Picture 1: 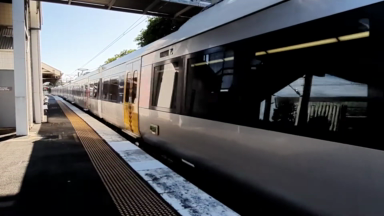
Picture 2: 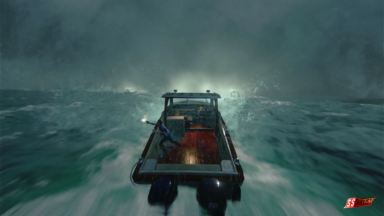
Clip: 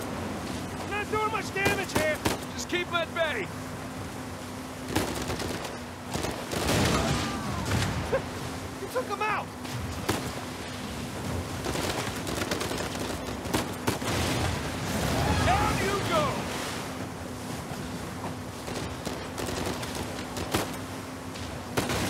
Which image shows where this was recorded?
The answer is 2